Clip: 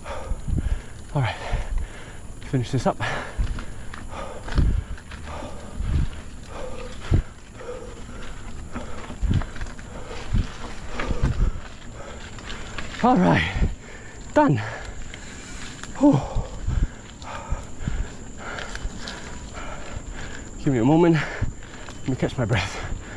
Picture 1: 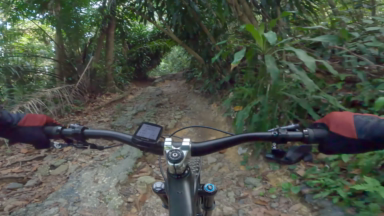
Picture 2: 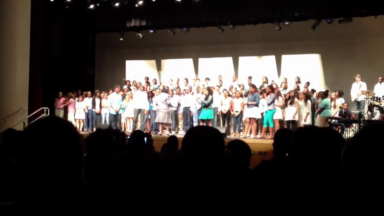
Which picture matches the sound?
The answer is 1